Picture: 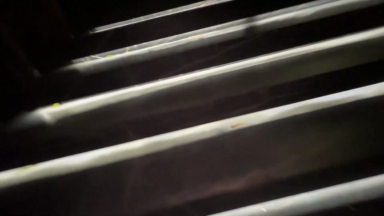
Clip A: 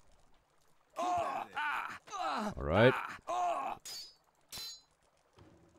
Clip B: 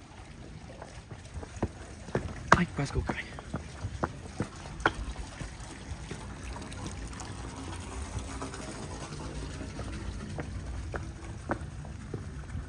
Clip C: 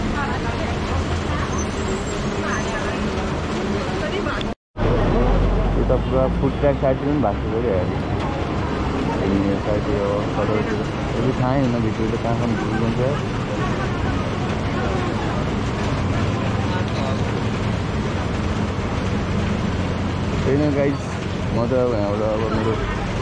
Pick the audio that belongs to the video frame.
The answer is B